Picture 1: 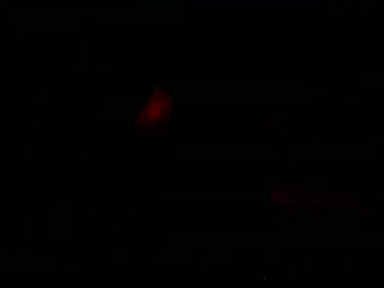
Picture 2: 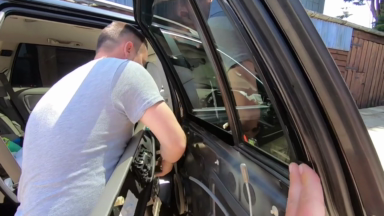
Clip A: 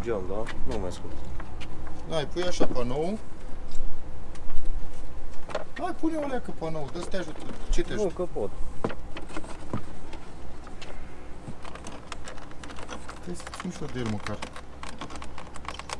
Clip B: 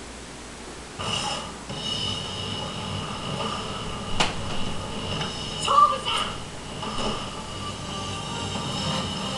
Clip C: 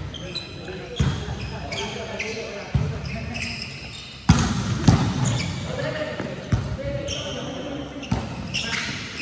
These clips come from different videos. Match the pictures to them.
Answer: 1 B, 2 A